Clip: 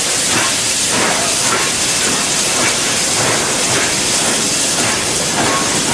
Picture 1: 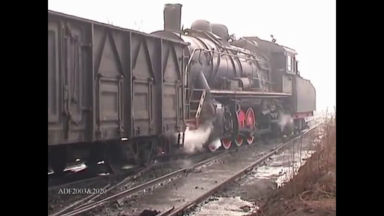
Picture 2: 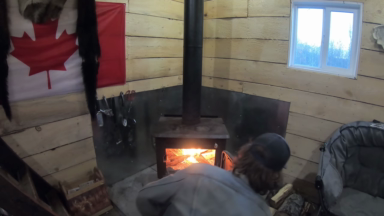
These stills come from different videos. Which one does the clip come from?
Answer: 1